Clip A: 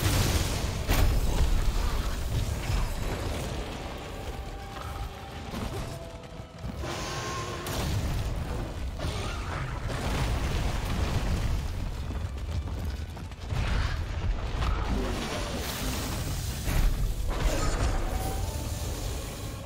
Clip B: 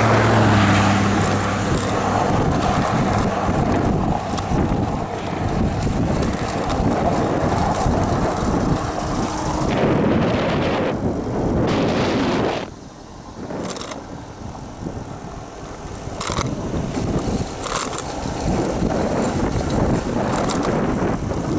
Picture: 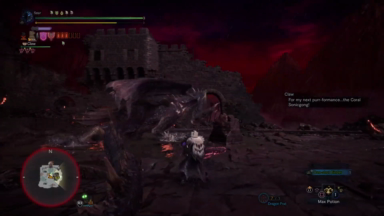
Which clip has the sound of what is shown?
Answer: A